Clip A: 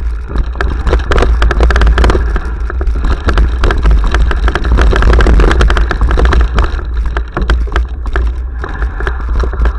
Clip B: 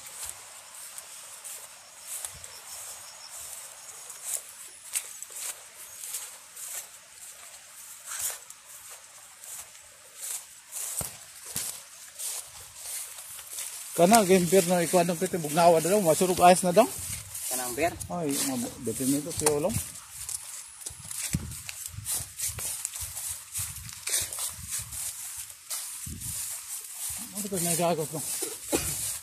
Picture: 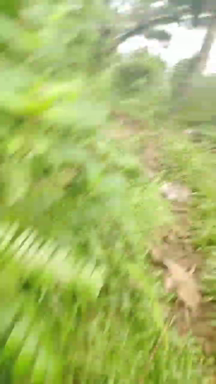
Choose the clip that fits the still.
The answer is B